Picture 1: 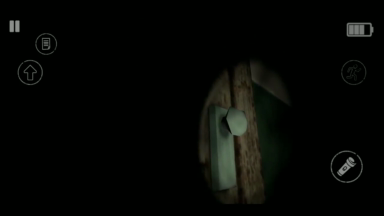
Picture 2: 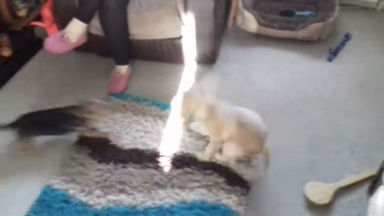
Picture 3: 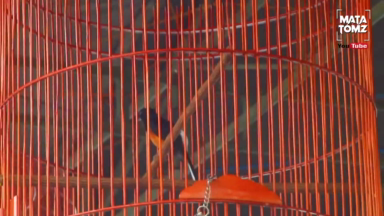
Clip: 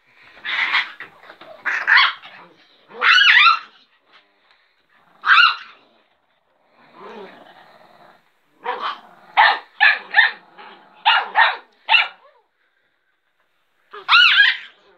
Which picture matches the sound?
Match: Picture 2